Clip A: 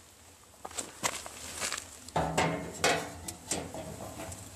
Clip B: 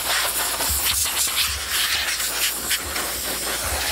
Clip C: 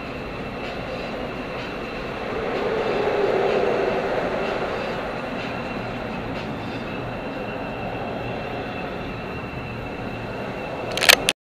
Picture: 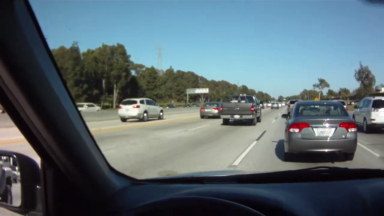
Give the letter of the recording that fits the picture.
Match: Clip C